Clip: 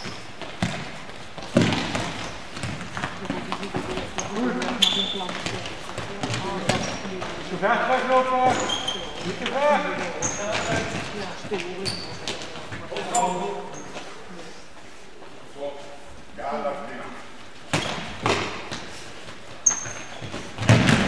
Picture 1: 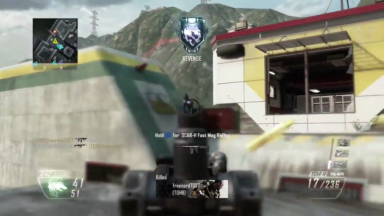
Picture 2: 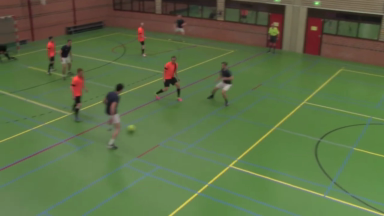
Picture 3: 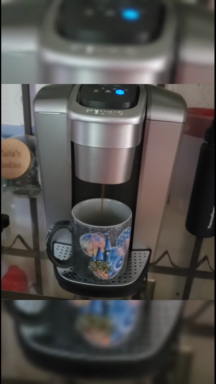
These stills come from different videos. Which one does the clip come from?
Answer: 2